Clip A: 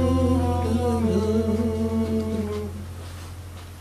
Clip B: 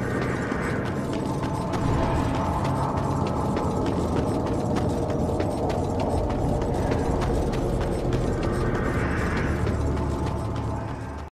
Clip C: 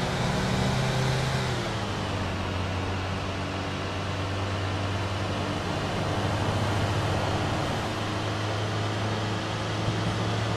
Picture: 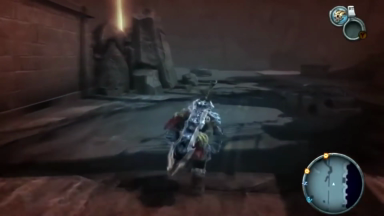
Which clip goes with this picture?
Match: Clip B